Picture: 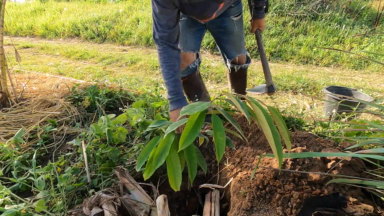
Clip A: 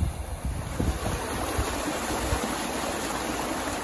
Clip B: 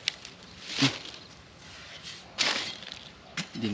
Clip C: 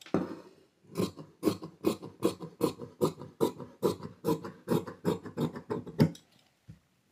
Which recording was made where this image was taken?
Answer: B